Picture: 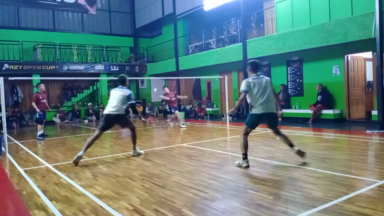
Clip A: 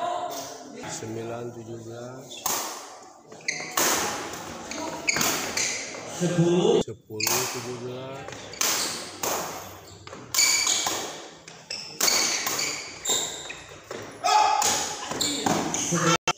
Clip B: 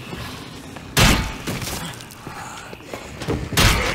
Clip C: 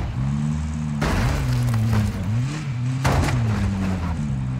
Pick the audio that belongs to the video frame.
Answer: A